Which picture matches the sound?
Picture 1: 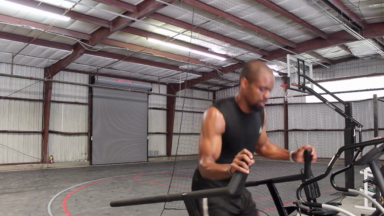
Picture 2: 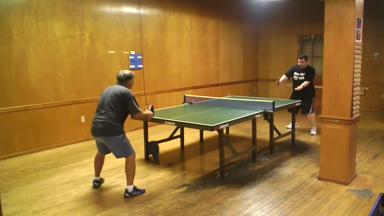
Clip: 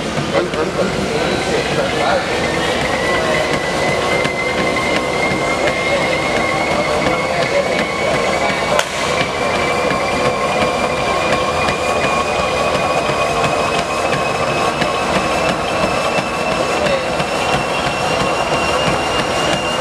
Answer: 1